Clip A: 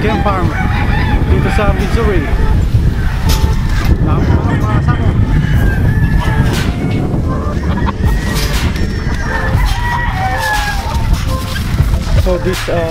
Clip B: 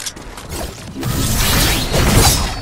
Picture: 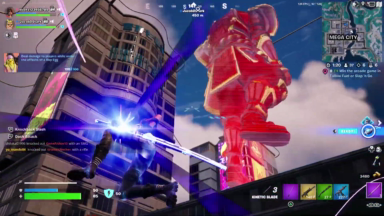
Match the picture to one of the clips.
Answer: B